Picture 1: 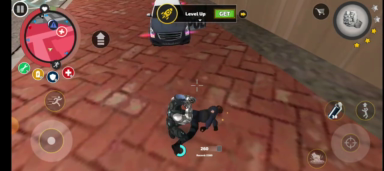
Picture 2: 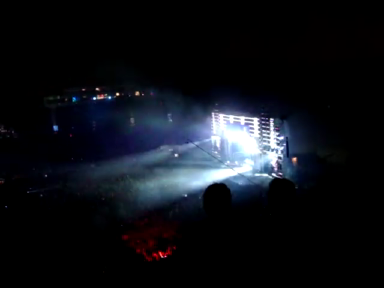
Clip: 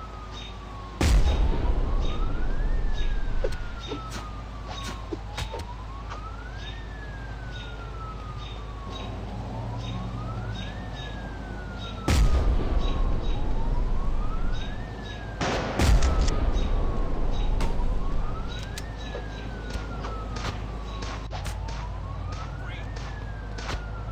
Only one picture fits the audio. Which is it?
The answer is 1